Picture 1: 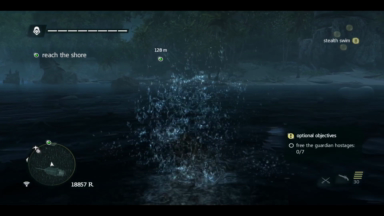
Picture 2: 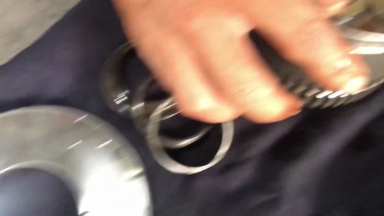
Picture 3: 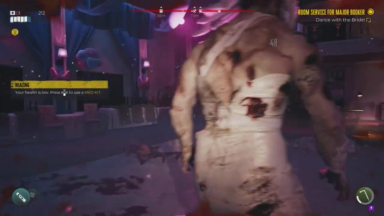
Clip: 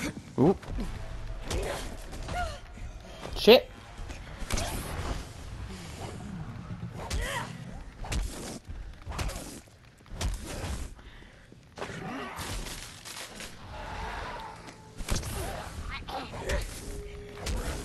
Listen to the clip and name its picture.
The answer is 3